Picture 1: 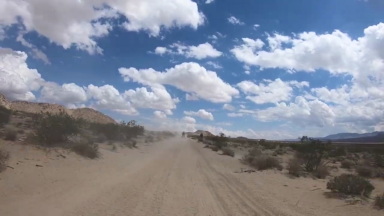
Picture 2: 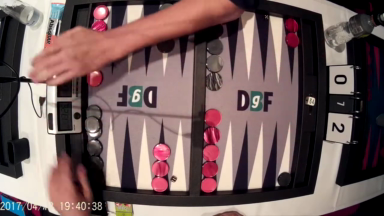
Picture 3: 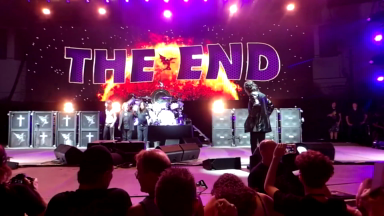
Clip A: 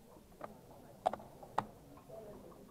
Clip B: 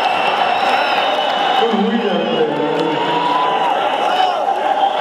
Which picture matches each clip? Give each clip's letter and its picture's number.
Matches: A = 2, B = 3